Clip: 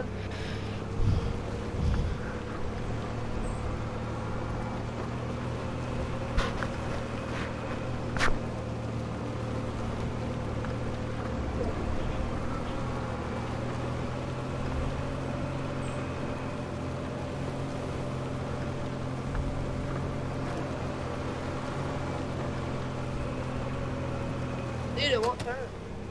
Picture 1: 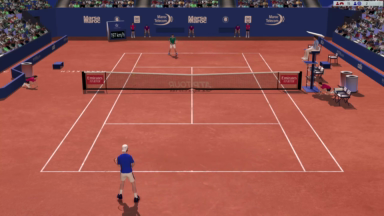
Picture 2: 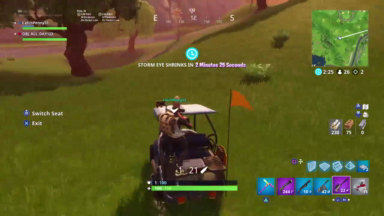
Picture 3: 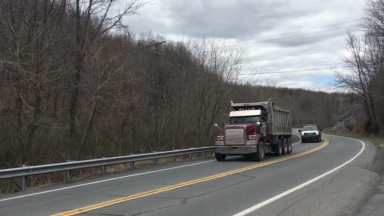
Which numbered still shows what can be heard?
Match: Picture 2